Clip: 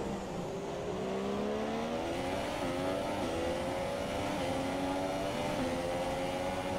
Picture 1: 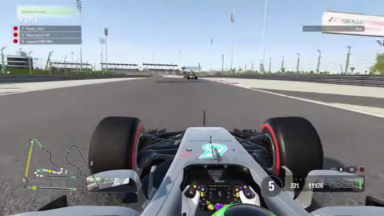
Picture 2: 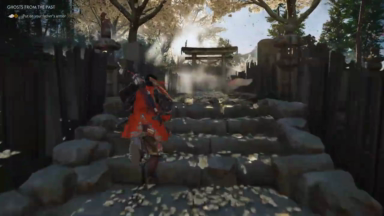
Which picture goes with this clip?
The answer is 1